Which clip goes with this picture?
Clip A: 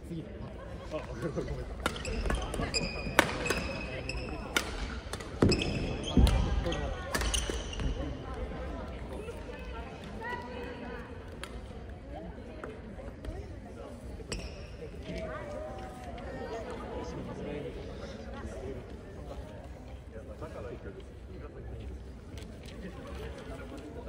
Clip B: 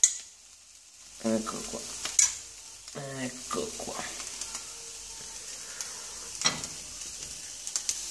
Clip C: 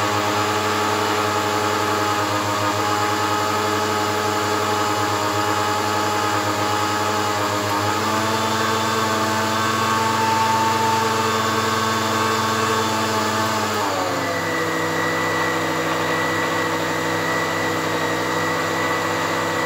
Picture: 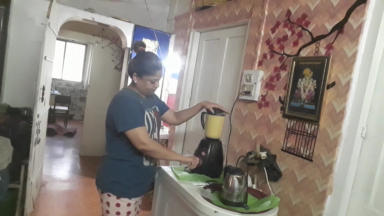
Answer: C